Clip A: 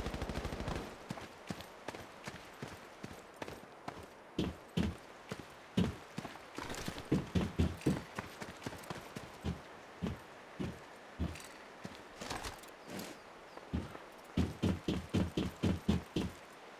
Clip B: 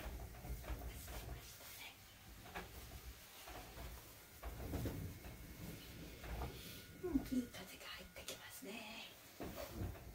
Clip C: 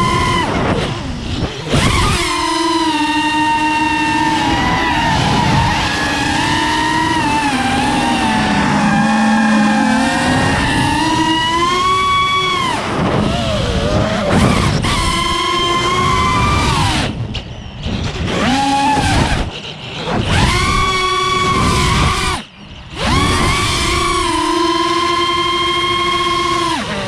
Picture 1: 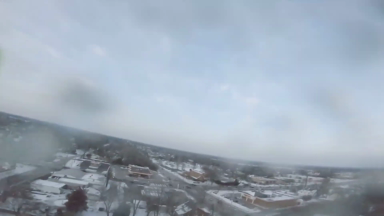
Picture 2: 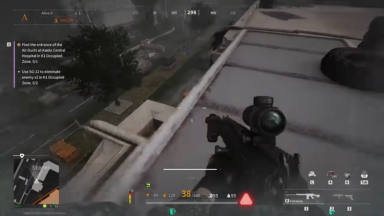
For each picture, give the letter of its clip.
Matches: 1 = C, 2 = A